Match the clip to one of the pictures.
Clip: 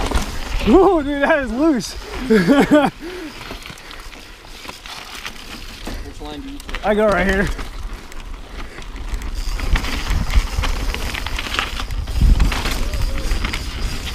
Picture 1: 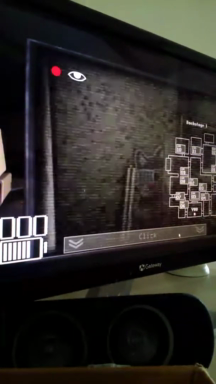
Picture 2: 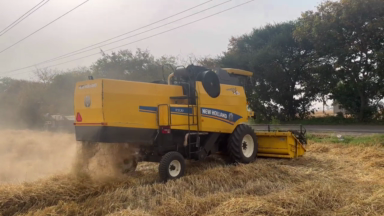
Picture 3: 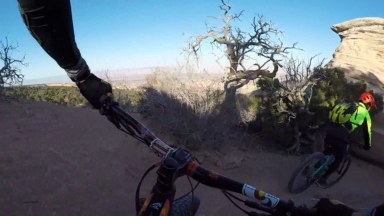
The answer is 3